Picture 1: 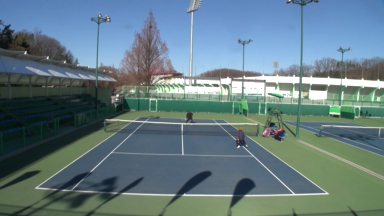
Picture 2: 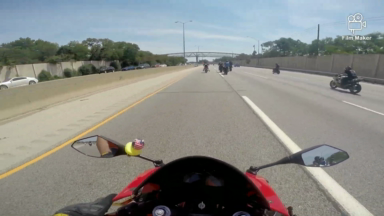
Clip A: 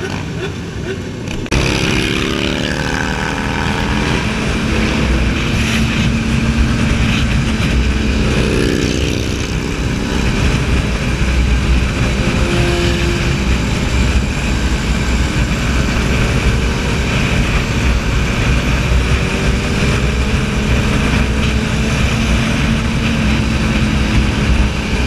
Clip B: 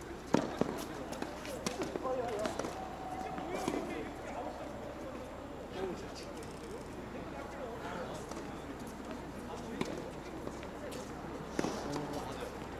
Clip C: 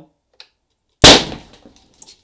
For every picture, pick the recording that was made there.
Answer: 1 B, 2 A